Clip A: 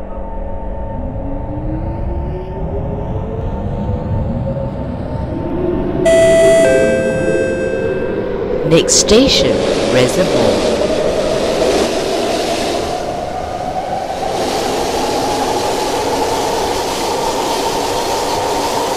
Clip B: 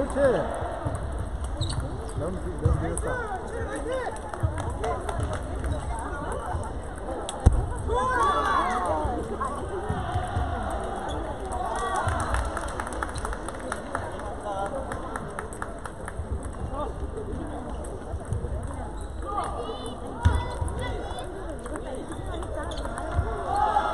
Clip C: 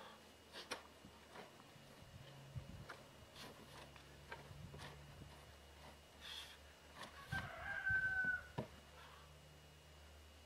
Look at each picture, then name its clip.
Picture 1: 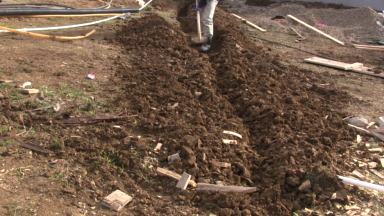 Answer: C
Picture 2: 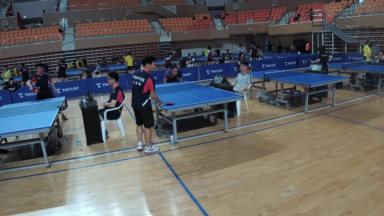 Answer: B